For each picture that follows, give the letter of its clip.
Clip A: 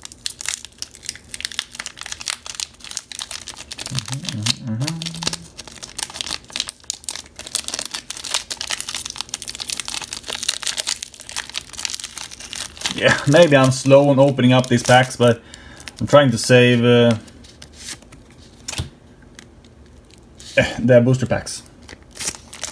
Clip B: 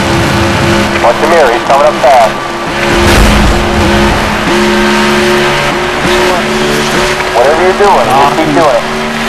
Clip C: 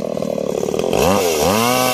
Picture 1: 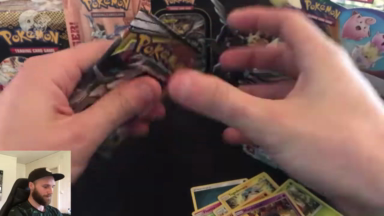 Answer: A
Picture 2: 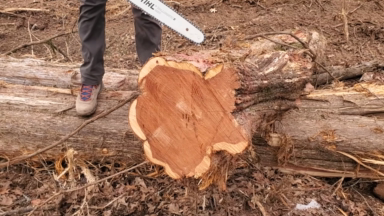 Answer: C